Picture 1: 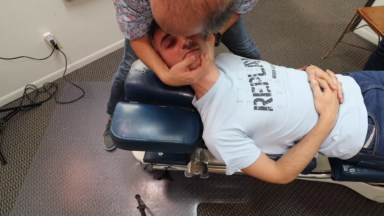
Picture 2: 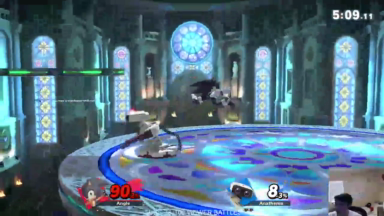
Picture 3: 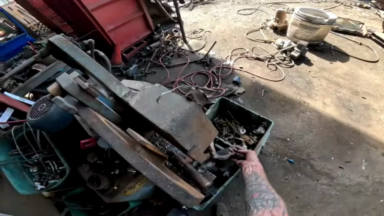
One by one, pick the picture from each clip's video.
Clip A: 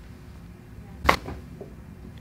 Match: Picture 1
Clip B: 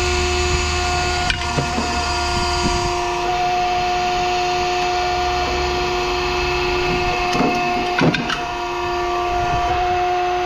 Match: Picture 3